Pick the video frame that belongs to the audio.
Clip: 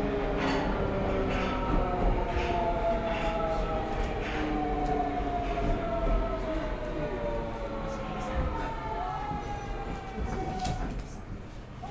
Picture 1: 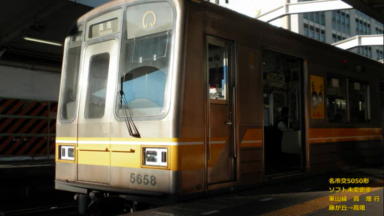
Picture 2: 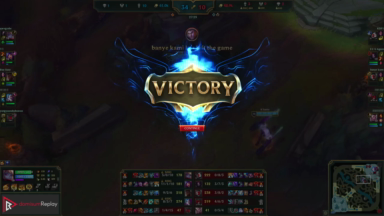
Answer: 1